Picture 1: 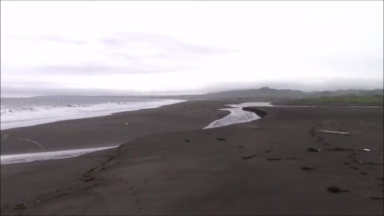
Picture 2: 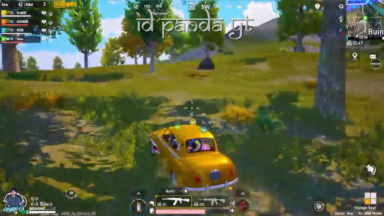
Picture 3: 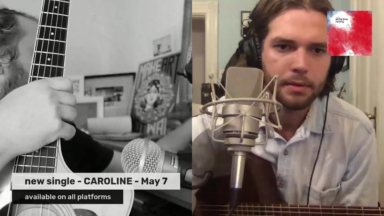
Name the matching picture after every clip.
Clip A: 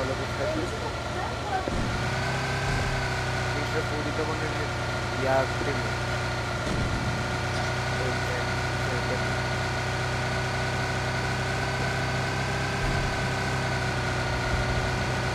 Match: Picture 2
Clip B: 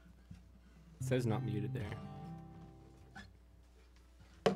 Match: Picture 3